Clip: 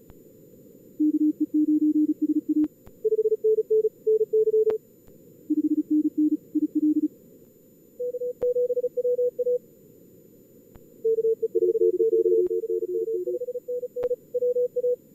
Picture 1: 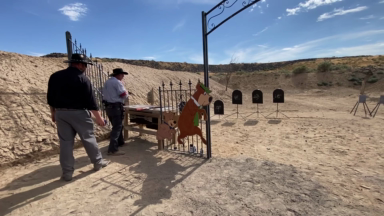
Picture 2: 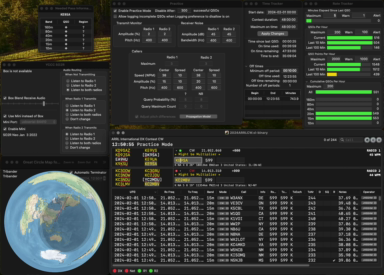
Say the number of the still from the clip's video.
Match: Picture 2